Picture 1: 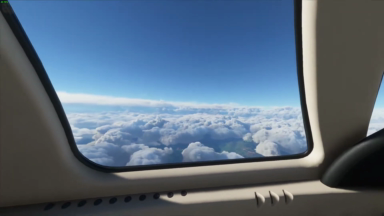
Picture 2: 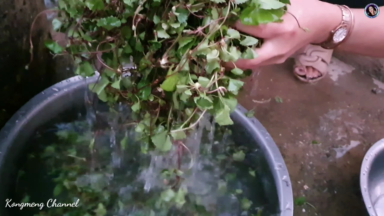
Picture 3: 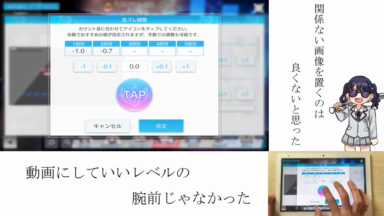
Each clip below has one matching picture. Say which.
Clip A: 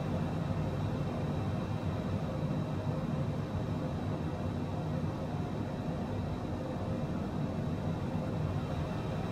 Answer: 1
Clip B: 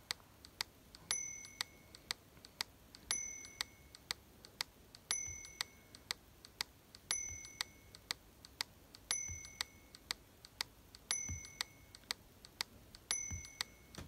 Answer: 3